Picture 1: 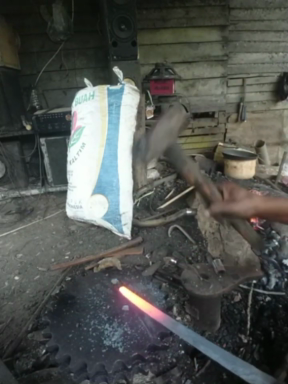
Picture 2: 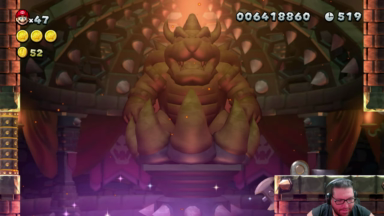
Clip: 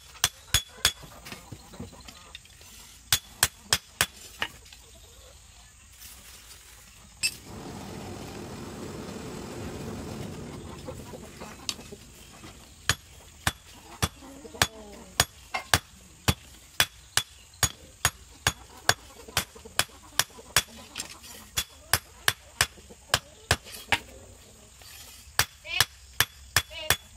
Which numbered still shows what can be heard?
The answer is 1